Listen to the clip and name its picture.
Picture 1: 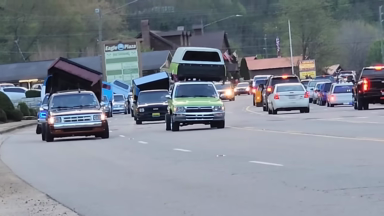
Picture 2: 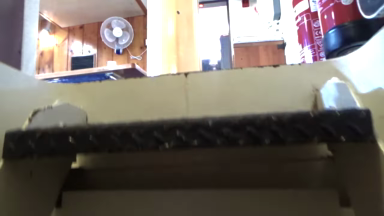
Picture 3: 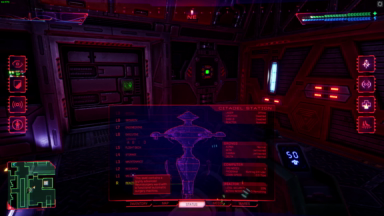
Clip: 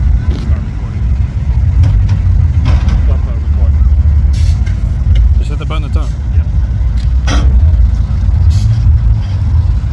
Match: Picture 1